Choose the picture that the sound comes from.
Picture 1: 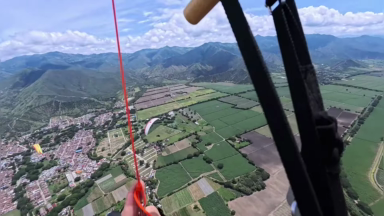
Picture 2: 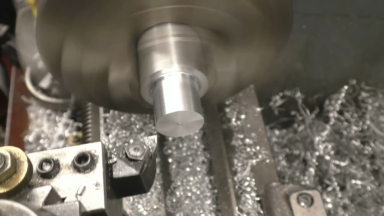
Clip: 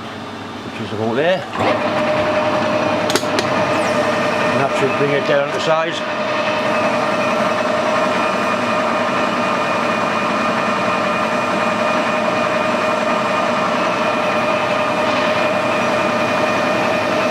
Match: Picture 2